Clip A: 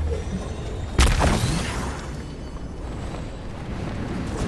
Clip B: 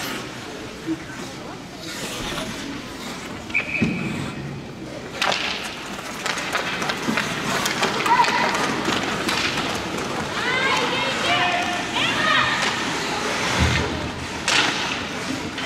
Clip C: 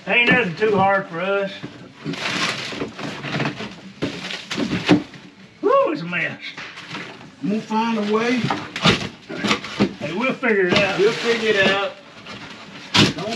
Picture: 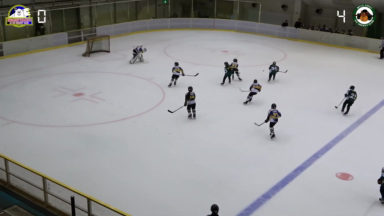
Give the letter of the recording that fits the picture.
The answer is B